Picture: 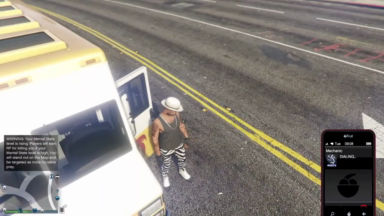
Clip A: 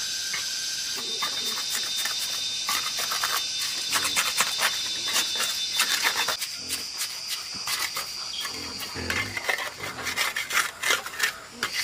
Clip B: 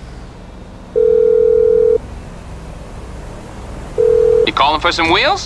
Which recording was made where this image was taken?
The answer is B